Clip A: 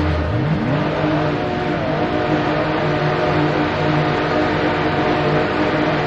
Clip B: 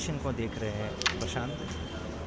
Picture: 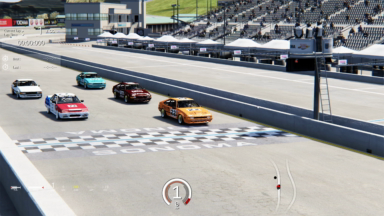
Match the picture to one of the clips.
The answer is A